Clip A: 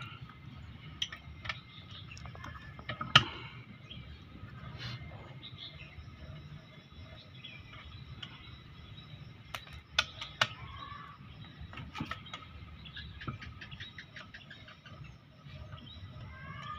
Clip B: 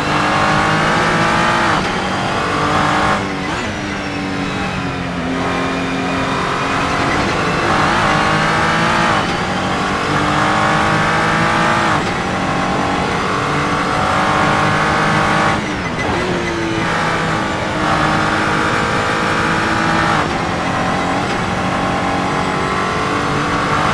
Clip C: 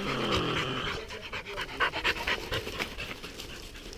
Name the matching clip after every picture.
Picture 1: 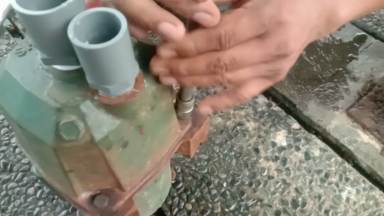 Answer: A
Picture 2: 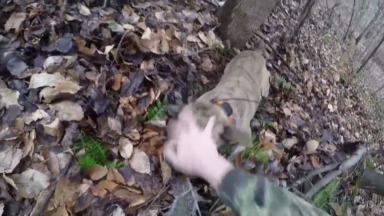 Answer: C